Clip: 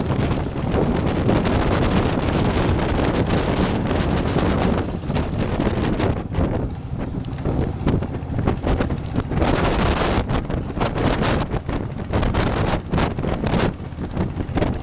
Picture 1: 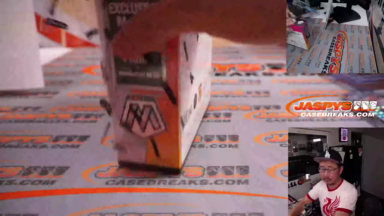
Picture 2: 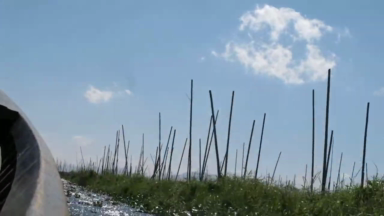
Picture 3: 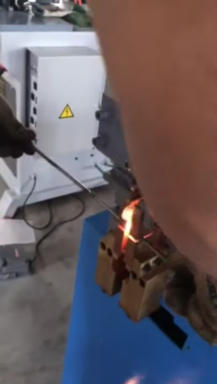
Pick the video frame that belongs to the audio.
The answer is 2